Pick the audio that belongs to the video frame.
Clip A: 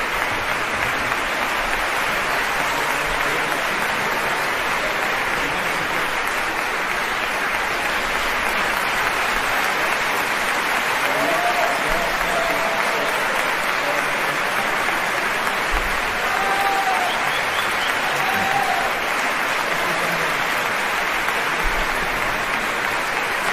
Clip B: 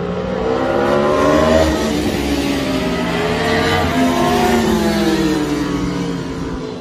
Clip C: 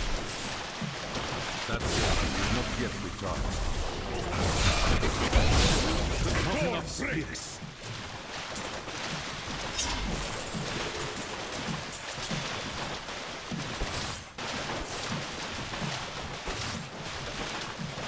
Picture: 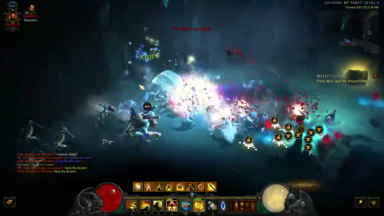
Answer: C